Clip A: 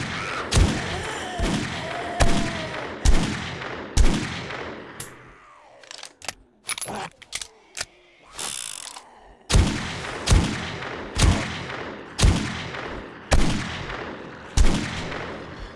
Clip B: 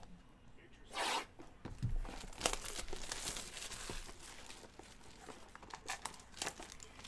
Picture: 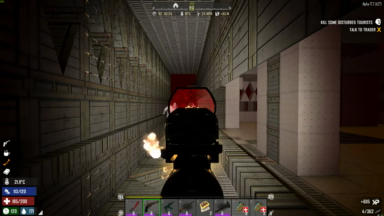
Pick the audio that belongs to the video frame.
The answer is A